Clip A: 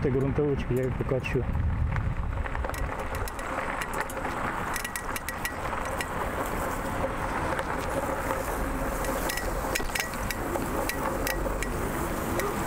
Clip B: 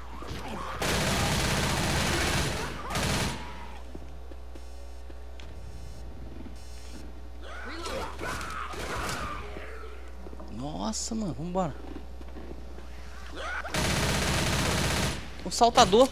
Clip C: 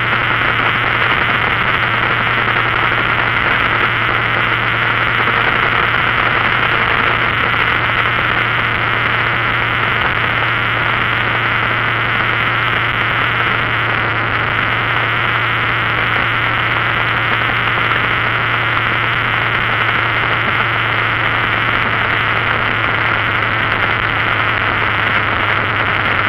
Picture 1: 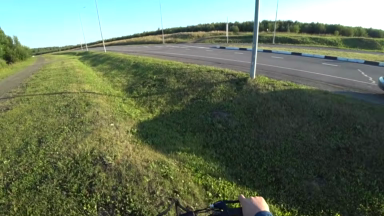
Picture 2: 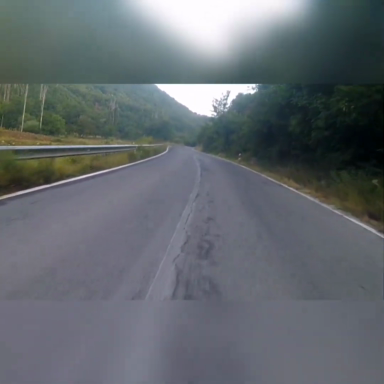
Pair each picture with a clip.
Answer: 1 A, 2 C